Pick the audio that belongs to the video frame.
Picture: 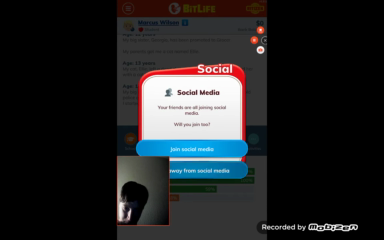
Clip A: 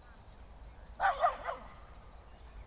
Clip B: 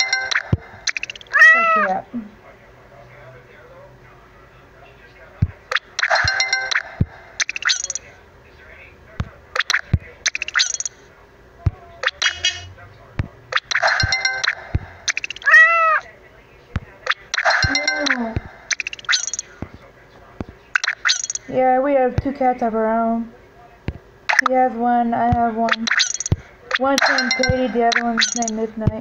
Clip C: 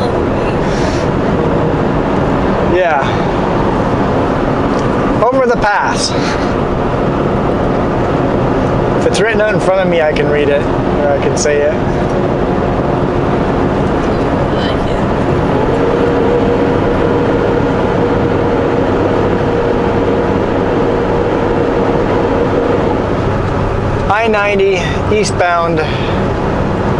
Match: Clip B